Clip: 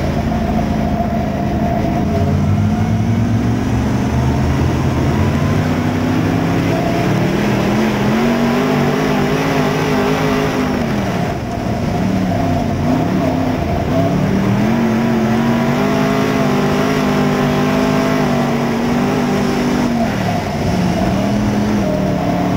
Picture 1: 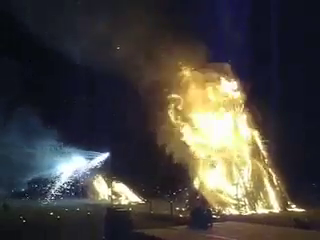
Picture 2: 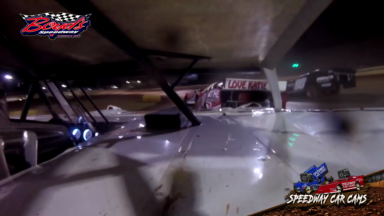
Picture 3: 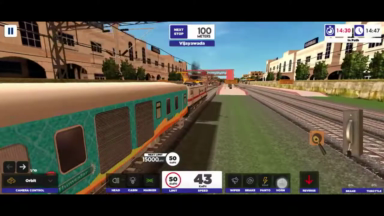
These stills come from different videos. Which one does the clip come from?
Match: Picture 2